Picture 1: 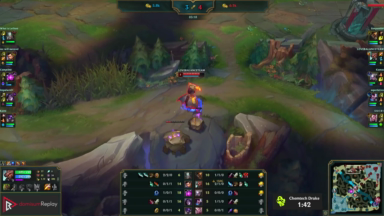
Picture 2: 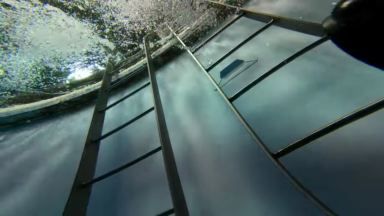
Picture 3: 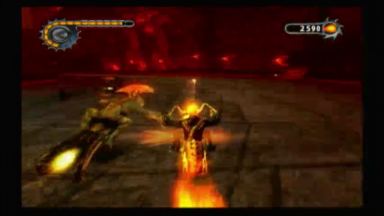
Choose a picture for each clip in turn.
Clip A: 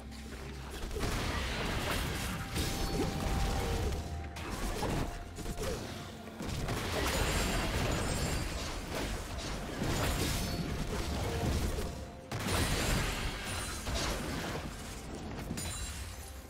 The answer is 1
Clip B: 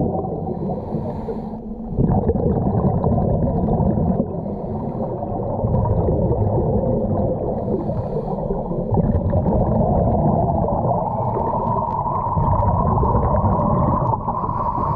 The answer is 2